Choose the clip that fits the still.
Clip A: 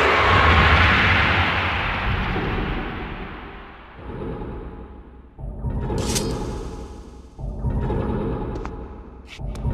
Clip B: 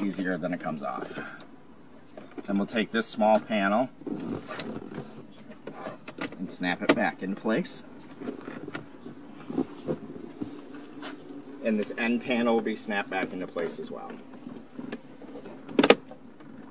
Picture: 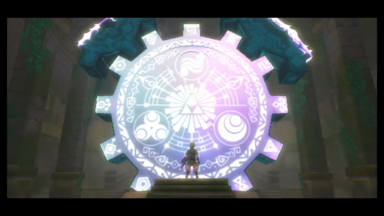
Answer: A